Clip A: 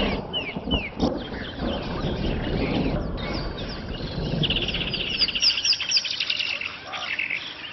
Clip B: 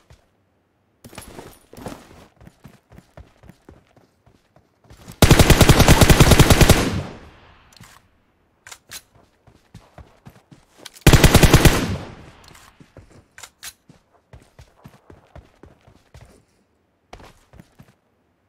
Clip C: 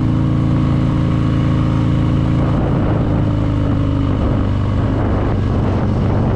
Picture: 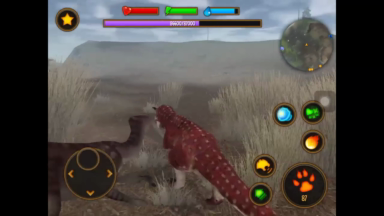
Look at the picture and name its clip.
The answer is A